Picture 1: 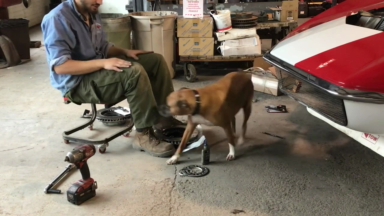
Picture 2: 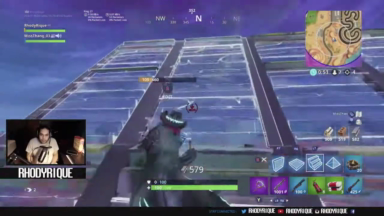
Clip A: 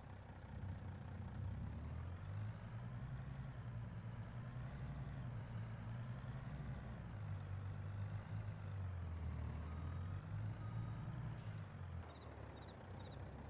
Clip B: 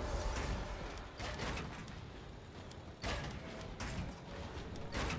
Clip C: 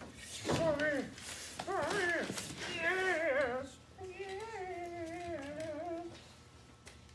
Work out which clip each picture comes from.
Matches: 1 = C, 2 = B